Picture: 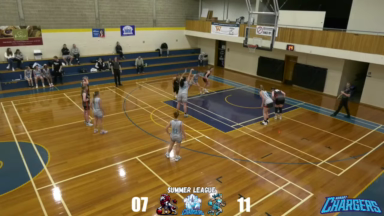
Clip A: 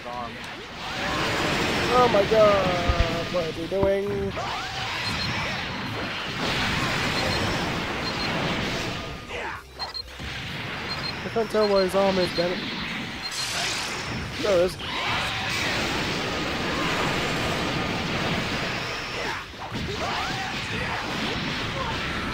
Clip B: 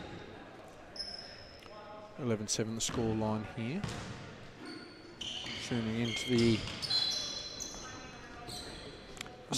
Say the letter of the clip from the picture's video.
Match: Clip B